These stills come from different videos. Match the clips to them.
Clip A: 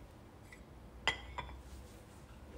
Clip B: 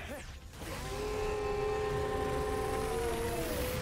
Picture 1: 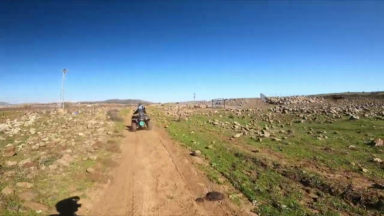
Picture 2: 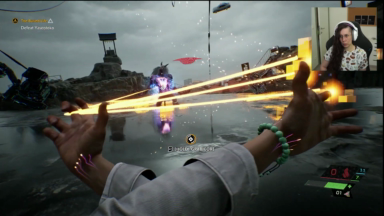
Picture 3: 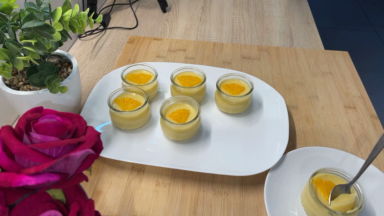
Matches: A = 3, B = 2